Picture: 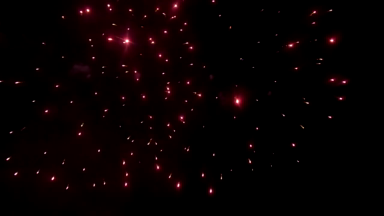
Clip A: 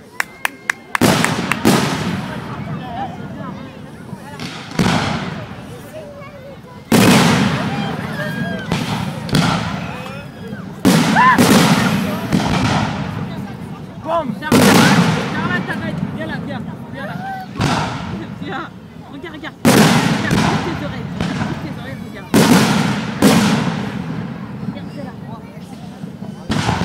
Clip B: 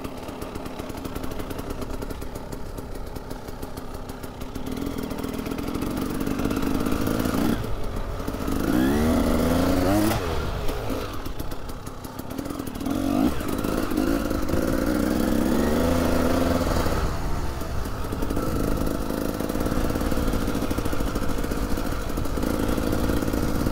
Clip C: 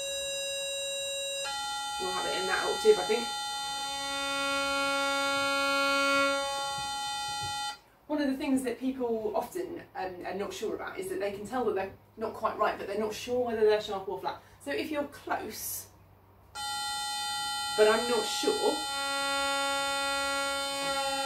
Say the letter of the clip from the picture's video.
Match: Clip A